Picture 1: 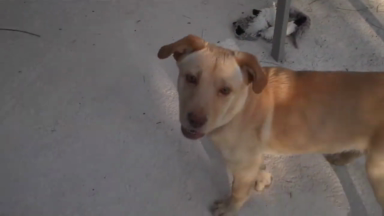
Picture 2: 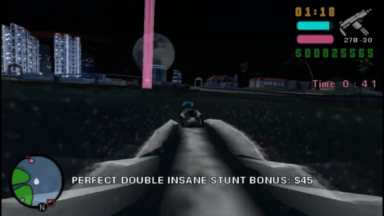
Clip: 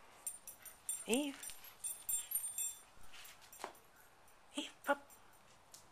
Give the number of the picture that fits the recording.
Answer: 1